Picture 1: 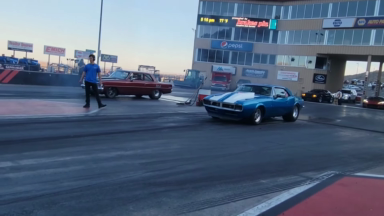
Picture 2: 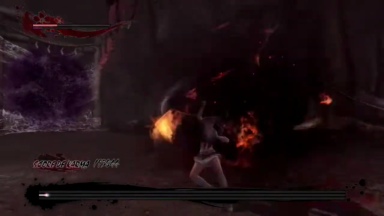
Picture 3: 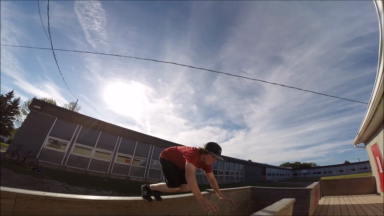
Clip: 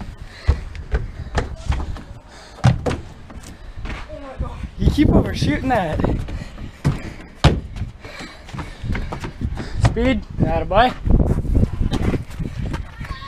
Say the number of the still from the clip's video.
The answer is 3